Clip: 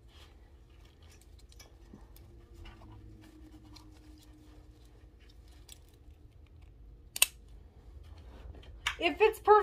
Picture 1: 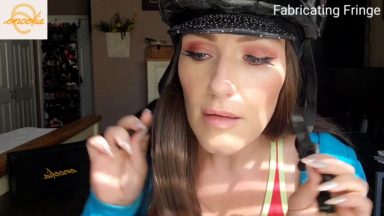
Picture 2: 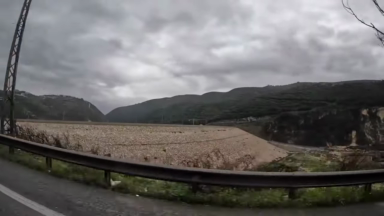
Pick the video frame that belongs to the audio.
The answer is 1